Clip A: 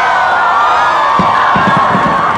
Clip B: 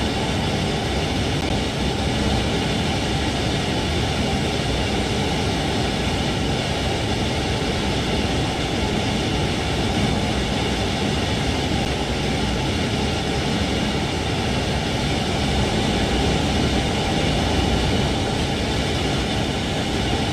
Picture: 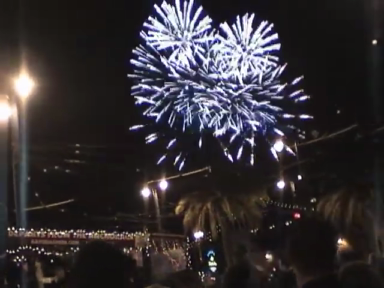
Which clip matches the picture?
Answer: A